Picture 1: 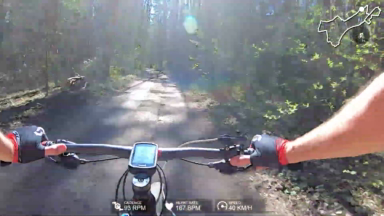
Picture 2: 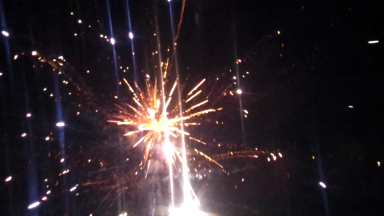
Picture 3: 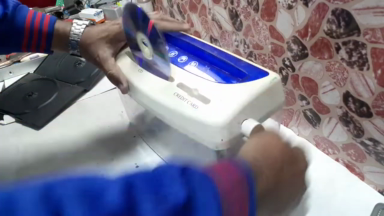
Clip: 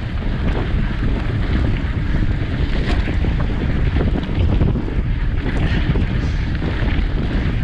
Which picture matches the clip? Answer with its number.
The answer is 1